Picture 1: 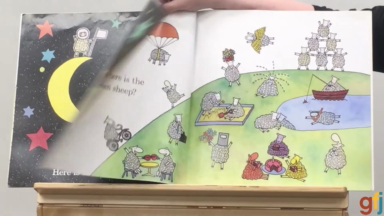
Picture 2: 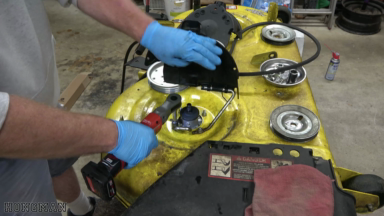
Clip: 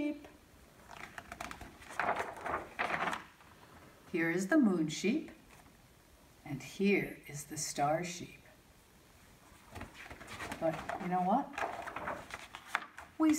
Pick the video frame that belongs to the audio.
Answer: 1